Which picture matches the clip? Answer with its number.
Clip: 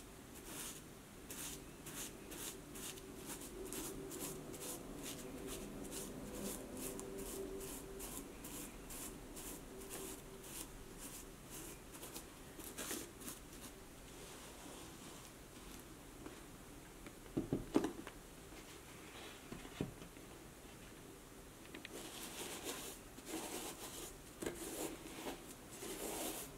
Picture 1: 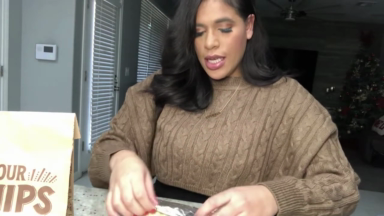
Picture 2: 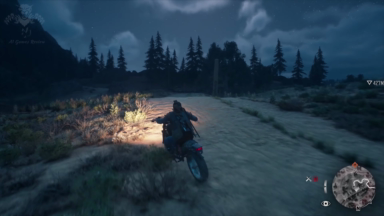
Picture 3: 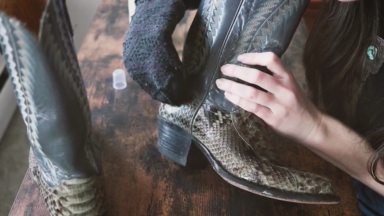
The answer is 3